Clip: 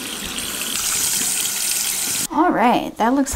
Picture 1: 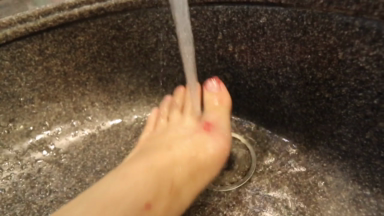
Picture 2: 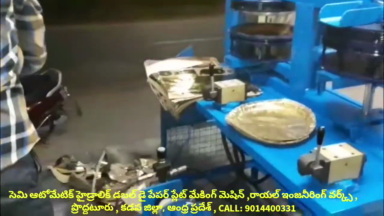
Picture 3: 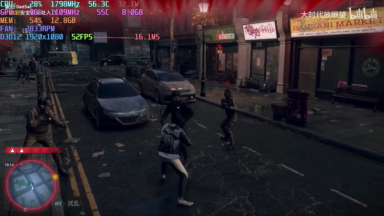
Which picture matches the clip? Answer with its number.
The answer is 1